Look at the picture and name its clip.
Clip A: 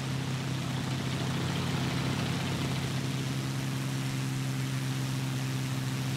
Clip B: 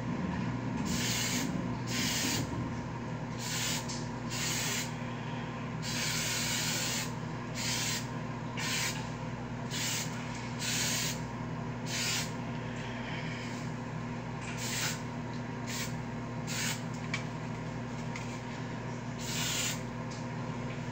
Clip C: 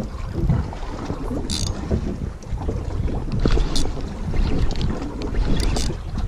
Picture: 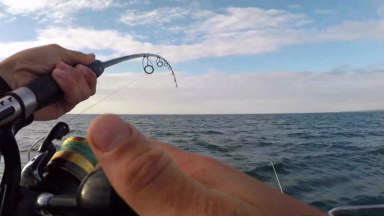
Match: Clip C